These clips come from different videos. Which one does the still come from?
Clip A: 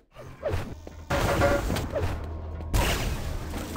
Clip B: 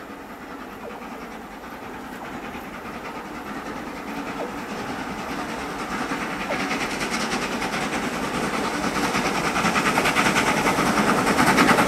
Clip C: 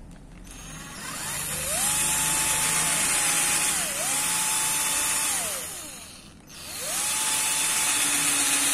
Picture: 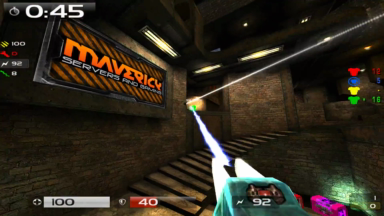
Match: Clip A